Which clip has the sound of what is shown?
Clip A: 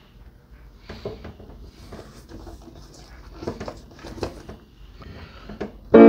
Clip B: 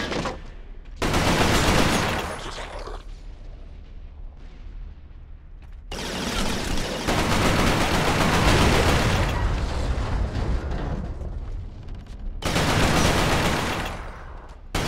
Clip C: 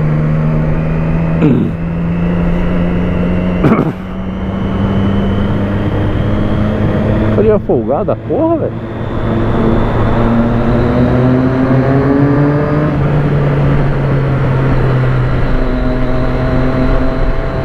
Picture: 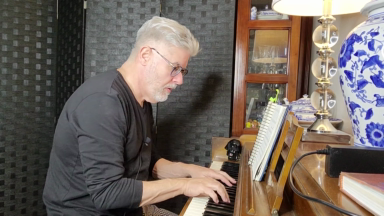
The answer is A